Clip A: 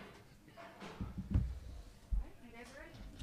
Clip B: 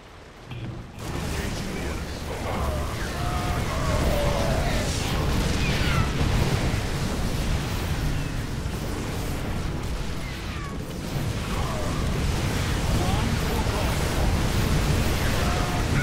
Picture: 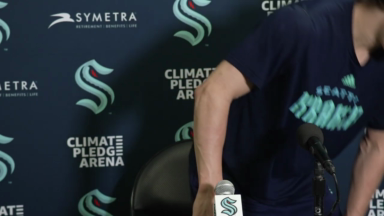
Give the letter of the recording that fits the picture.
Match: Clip A